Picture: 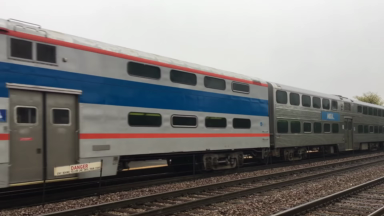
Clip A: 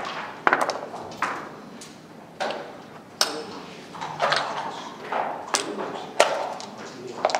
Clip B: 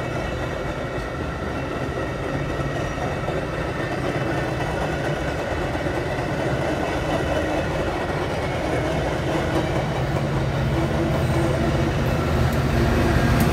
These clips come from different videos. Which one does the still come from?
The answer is B